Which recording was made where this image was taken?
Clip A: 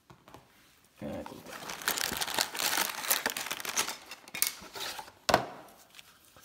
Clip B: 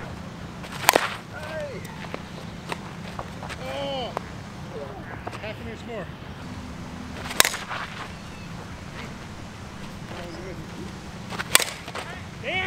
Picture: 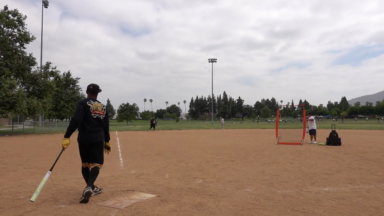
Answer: B